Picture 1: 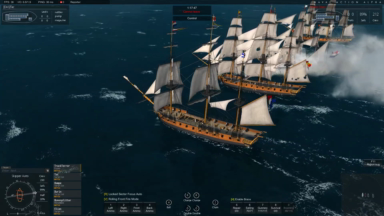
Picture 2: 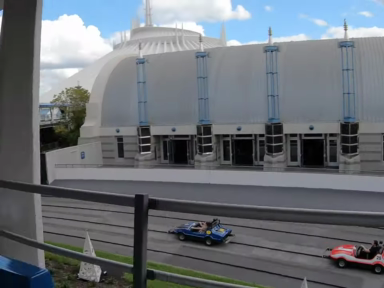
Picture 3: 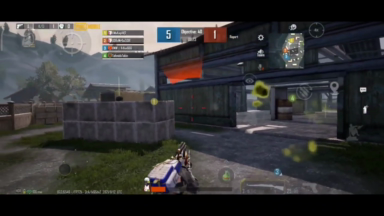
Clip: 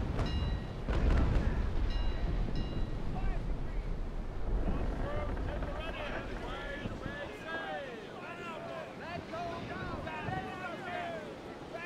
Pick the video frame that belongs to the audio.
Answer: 1